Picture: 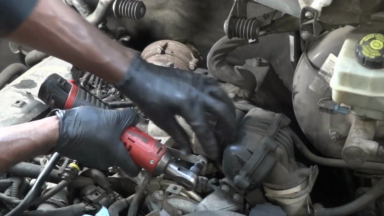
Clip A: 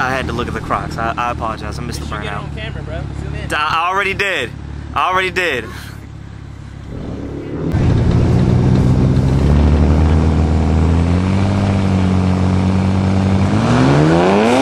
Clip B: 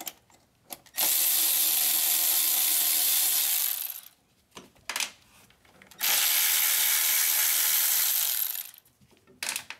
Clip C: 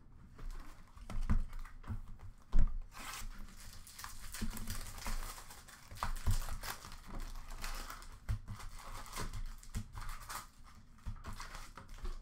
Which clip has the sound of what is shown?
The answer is B